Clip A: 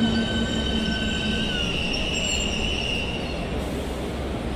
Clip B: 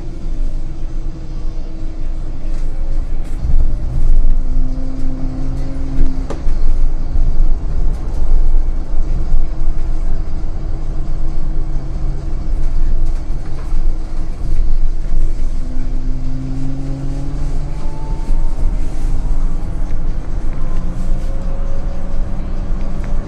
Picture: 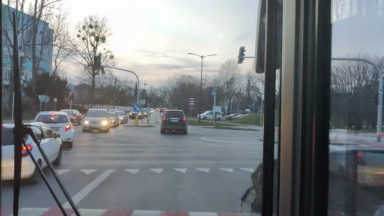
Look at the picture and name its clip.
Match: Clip B